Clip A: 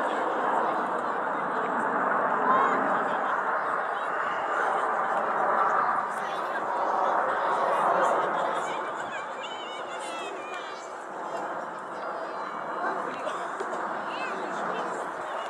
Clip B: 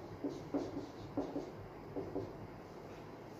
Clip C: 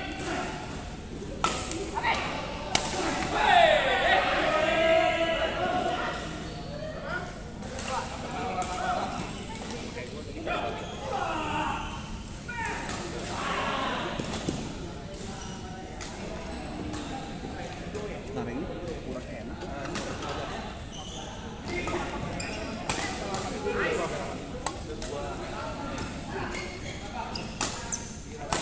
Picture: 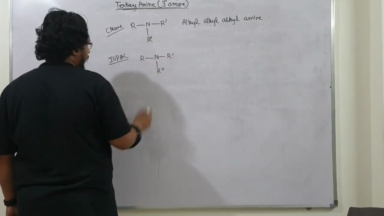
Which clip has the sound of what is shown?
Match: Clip B